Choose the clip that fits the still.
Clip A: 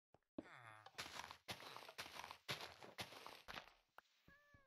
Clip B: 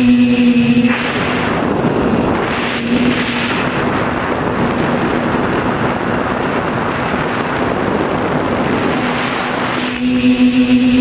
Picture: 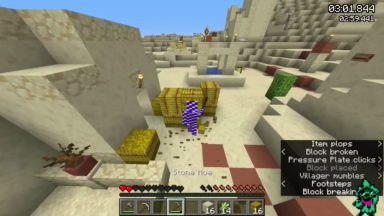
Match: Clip A